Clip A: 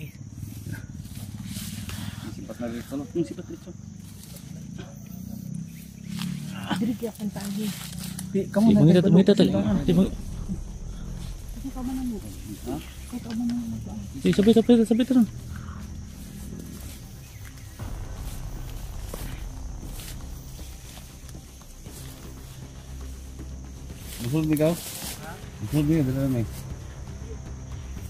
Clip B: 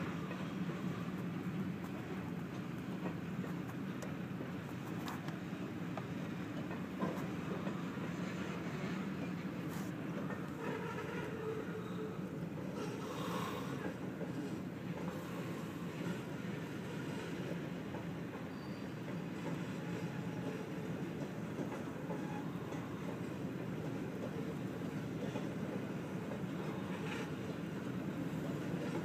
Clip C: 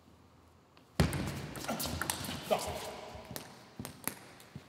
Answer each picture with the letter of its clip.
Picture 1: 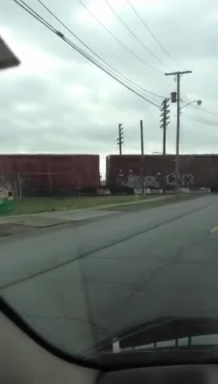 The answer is B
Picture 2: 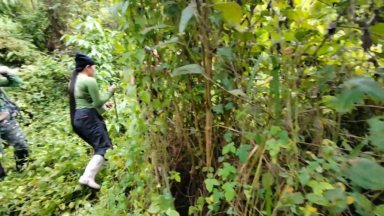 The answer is A